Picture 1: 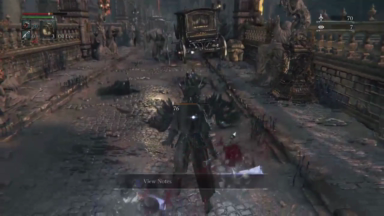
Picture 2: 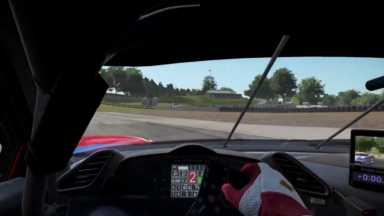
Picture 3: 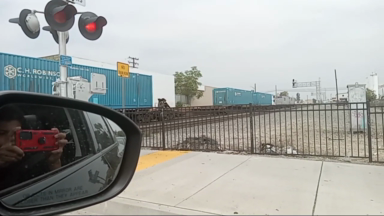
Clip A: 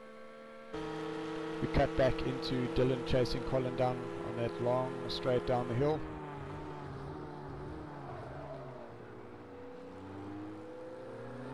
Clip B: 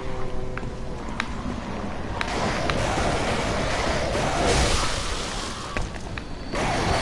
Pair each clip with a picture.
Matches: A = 2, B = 1